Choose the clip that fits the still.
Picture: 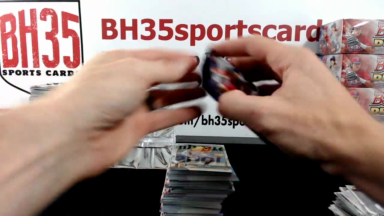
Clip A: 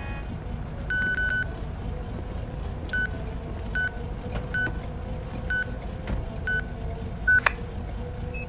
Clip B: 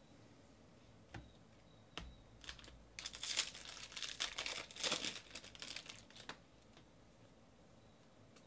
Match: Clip B